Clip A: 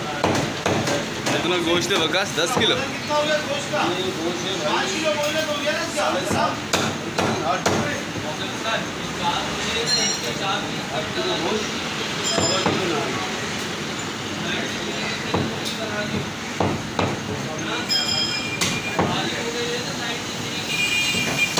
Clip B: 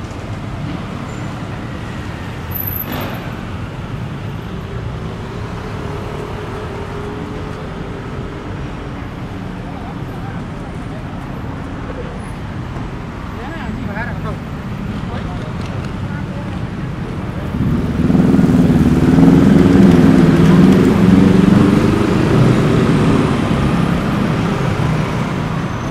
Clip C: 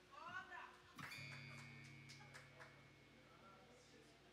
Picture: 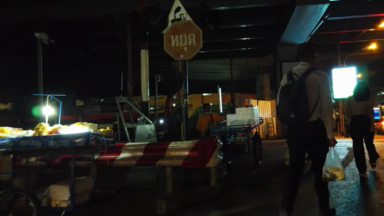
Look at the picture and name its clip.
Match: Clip B